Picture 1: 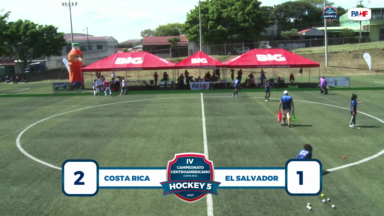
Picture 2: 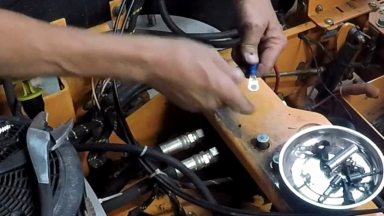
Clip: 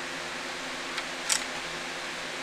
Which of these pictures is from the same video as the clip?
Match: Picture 2